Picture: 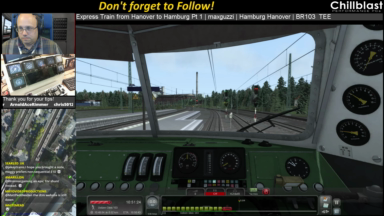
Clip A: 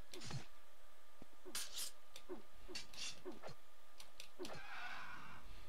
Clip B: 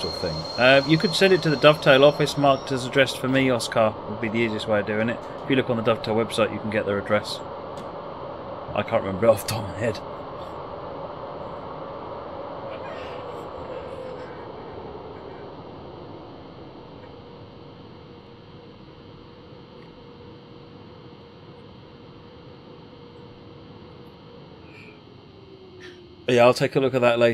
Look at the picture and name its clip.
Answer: B